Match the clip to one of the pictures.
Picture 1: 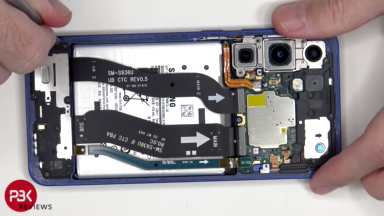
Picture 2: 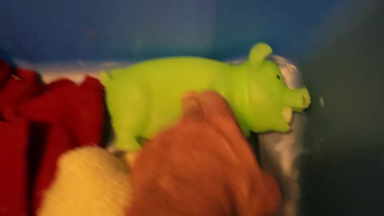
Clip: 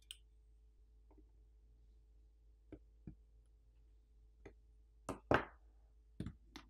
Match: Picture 1